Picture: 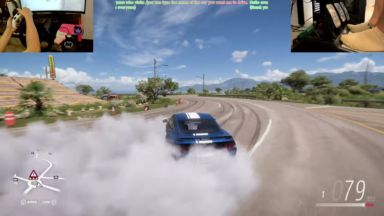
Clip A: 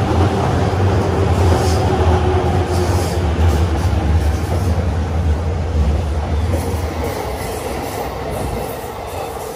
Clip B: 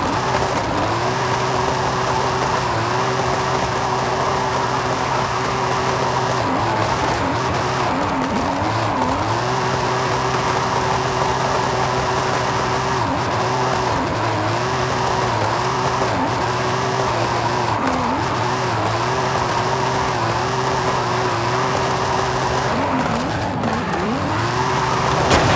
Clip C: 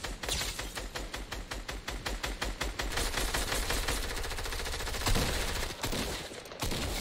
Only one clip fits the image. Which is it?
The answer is B